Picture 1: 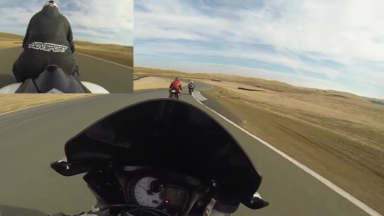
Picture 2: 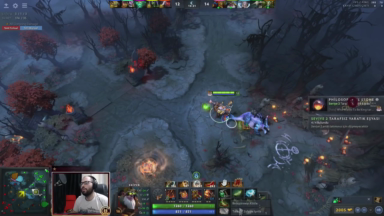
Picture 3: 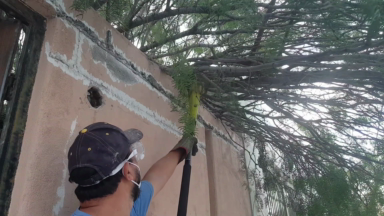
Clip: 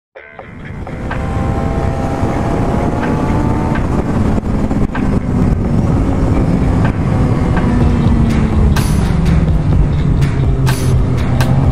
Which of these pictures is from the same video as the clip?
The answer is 1